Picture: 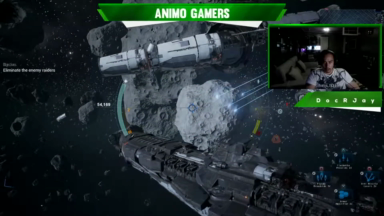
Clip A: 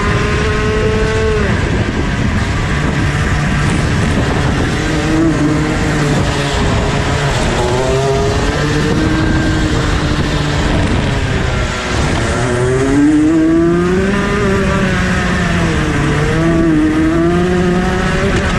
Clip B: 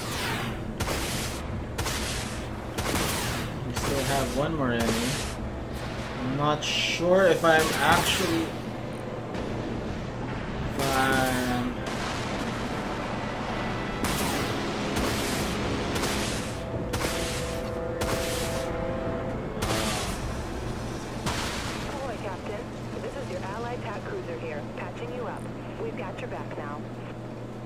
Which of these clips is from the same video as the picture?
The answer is B